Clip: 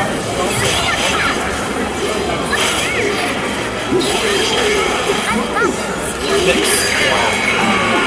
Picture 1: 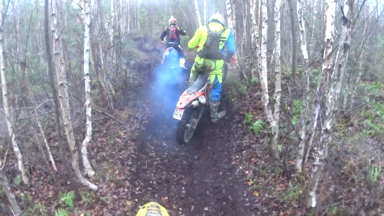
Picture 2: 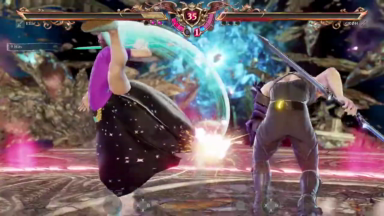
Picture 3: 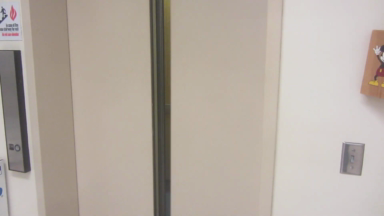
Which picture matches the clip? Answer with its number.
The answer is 2